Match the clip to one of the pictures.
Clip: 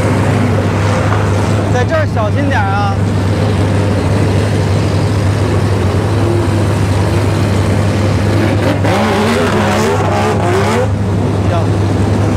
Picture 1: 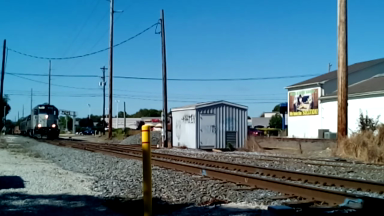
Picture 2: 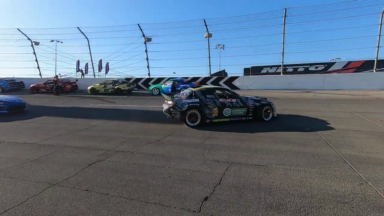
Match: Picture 2